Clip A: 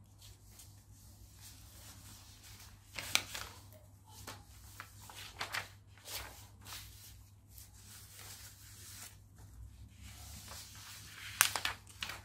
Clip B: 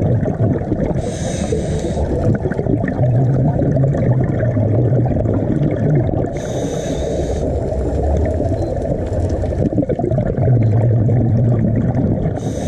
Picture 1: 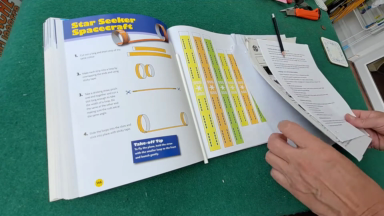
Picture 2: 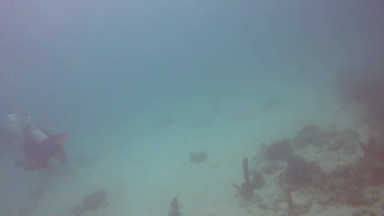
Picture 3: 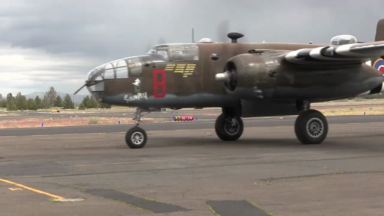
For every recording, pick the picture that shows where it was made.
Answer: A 1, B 2